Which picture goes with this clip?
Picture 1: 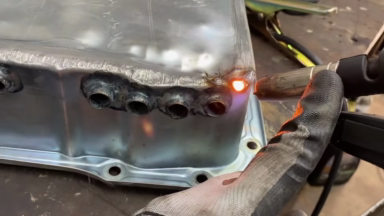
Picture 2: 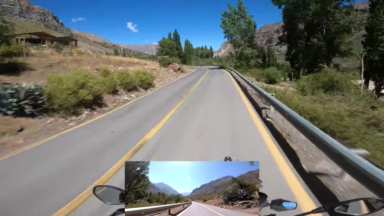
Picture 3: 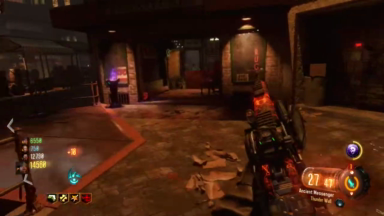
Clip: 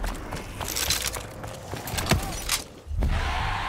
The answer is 3